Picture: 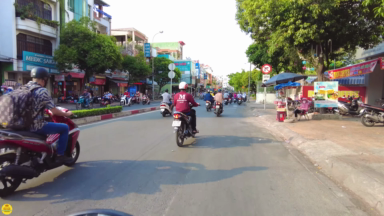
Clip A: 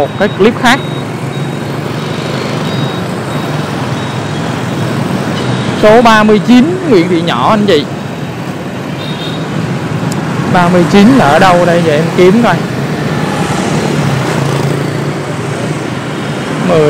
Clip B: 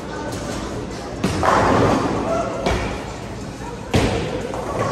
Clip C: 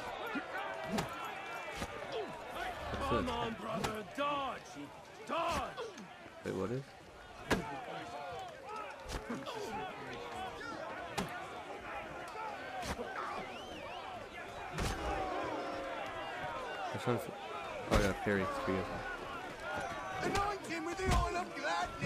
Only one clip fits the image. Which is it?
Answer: A